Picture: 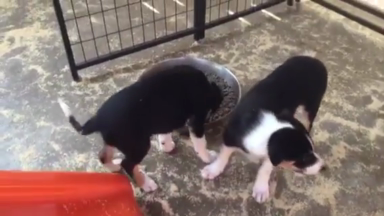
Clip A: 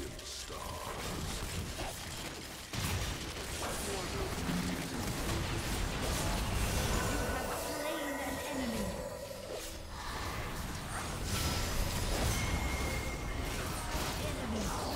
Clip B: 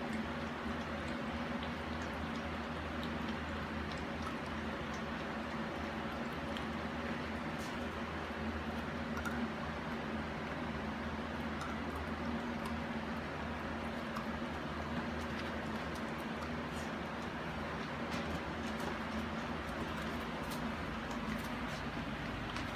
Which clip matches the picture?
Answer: B